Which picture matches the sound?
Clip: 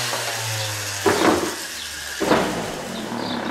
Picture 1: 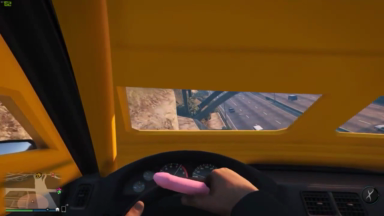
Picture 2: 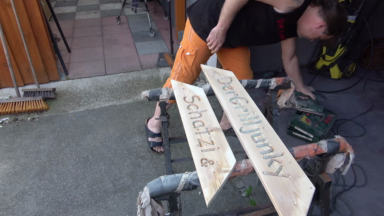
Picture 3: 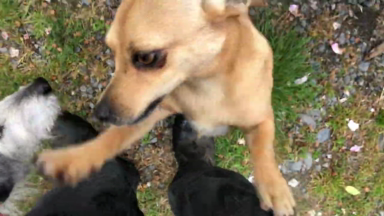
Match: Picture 2